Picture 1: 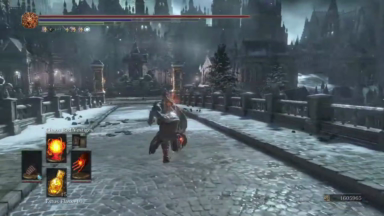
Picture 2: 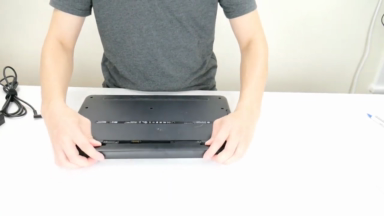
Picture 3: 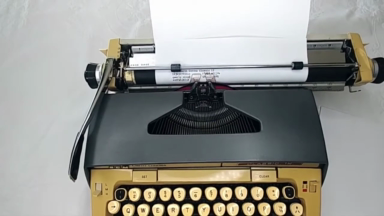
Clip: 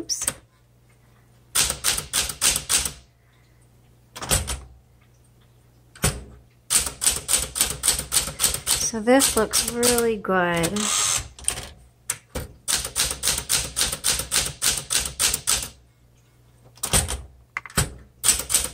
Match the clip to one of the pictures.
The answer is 3